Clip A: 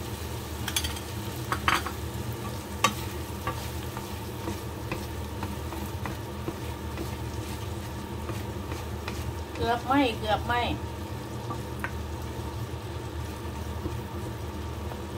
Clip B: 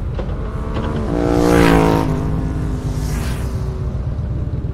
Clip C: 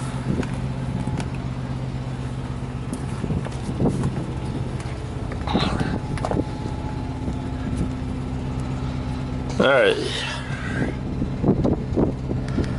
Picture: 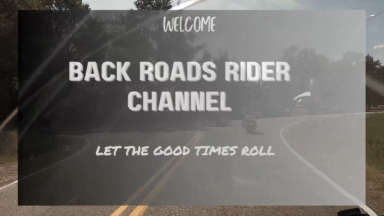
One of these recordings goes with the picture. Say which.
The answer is B